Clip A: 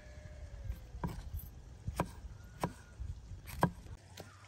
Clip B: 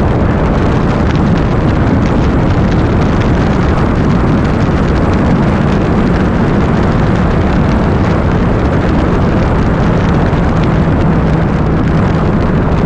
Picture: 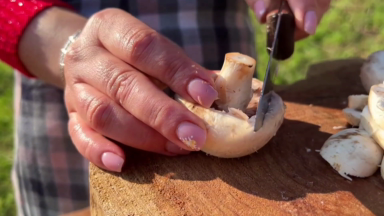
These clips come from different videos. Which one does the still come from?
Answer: A